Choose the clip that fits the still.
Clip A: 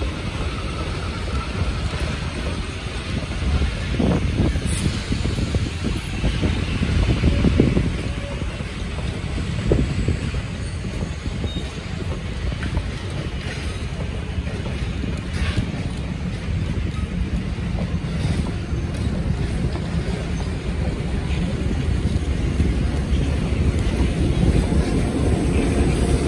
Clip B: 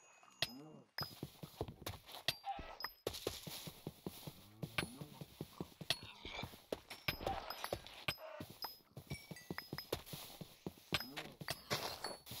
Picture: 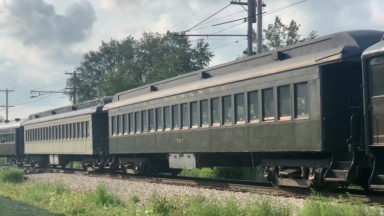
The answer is A